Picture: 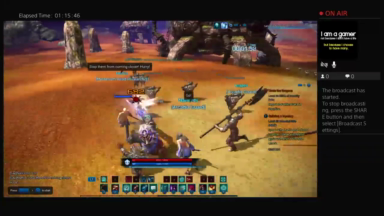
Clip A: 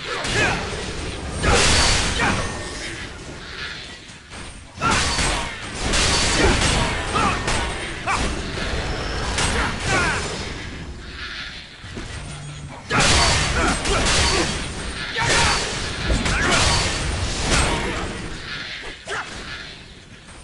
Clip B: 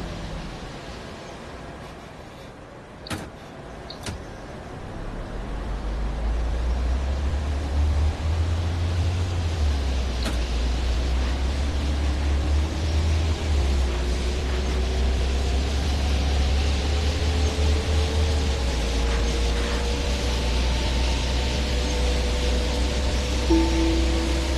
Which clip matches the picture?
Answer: A